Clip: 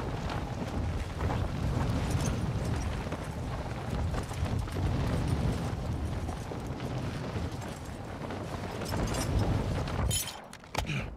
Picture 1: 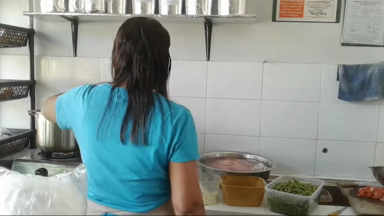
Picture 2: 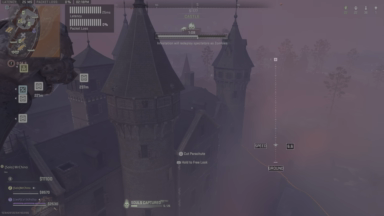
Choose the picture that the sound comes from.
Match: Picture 2